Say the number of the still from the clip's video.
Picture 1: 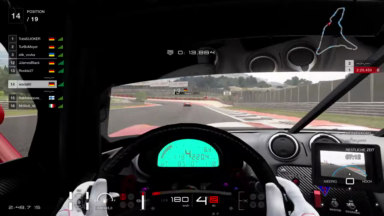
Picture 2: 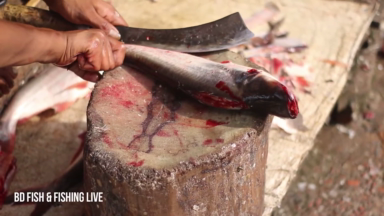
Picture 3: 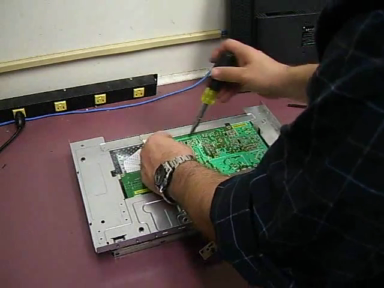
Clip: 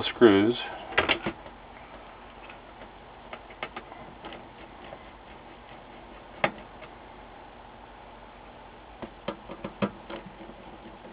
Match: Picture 3